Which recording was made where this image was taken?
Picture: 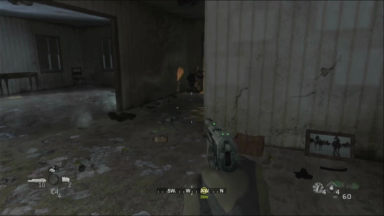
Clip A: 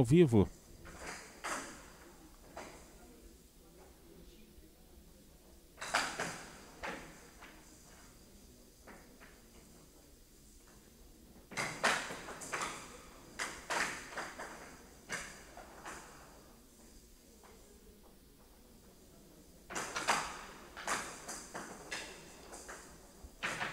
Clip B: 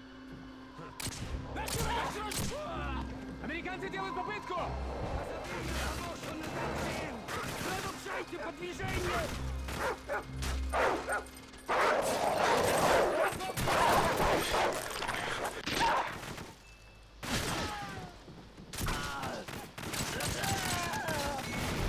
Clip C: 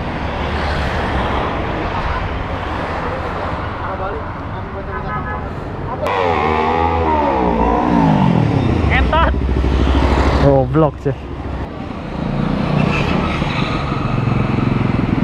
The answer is B